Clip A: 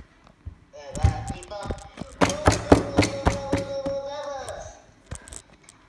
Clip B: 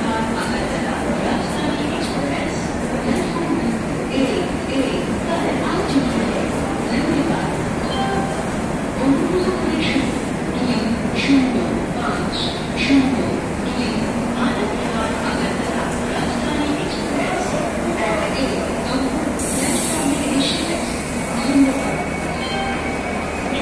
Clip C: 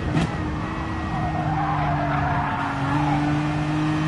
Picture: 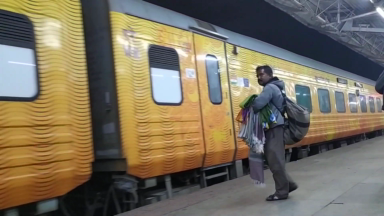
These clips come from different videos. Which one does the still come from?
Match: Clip B